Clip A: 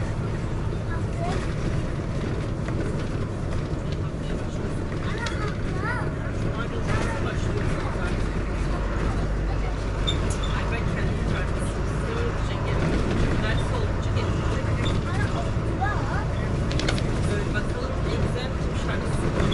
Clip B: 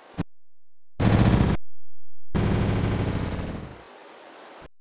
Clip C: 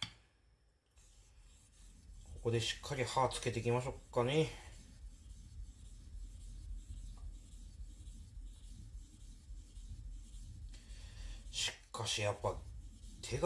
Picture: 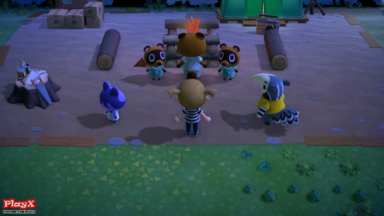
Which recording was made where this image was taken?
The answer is B